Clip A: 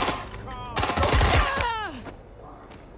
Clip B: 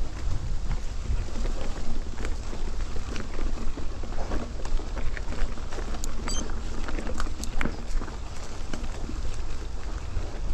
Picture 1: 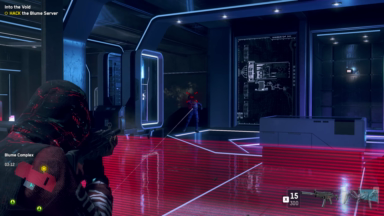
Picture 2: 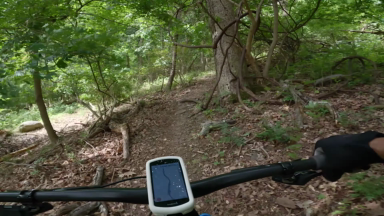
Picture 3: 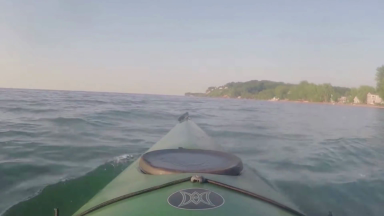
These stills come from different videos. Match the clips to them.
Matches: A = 1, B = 2